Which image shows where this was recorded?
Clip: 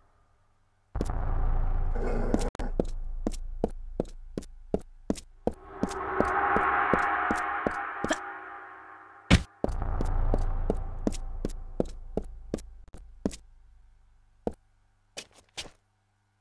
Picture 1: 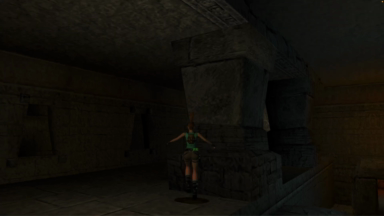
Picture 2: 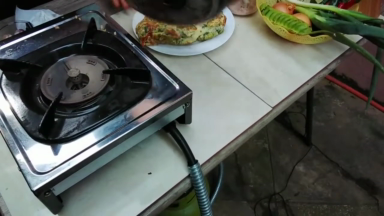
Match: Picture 1